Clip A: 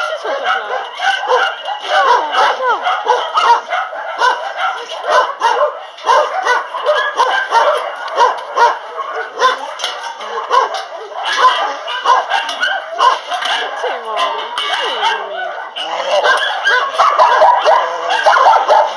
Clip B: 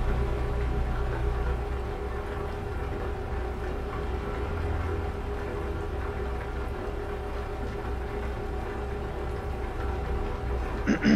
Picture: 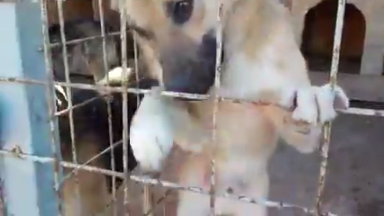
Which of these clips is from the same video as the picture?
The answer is A